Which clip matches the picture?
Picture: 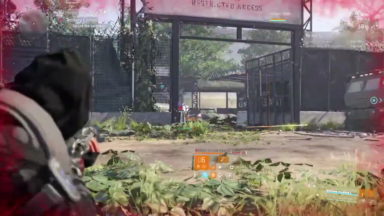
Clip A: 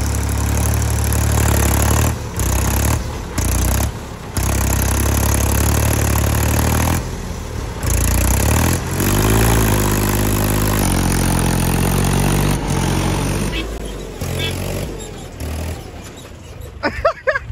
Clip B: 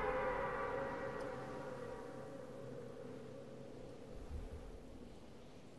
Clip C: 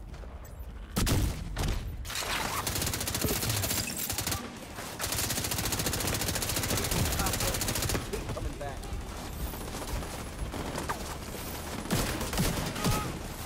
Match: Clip C